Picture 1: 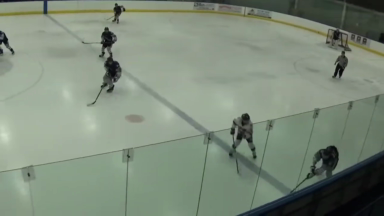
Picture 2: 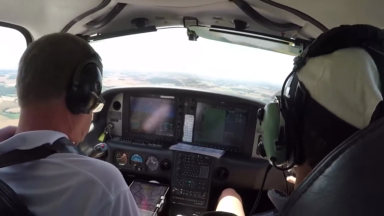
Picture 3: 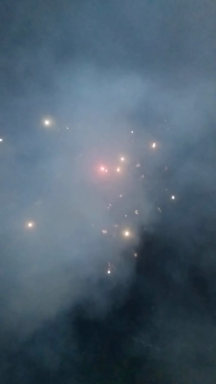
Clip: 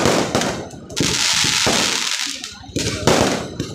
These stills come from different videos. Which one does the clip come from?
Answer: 3